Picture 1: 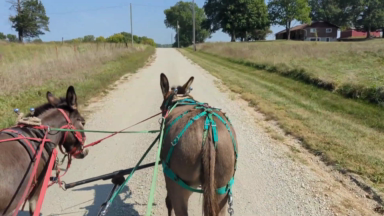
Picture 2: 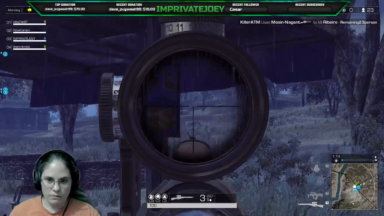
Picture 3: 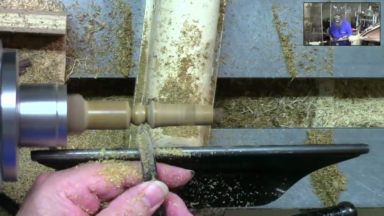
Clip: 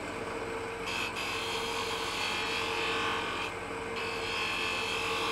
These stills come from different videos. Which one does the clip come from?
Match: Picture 3